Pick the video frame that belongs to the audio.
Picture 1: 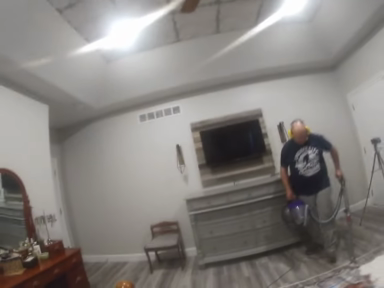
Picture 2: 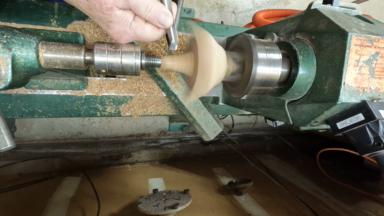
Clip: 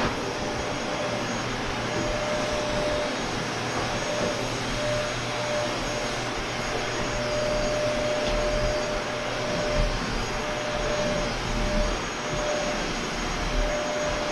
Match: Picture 1